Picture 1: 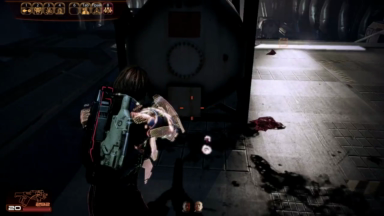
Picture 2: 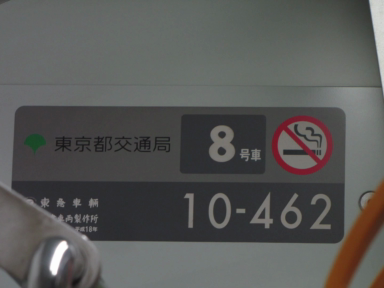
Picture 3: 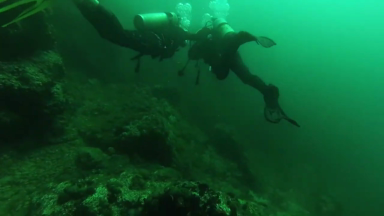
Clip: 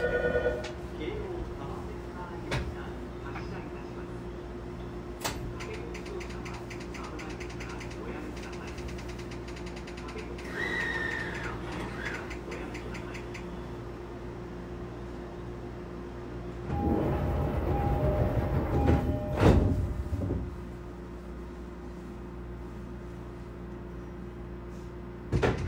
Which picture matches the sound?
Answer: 2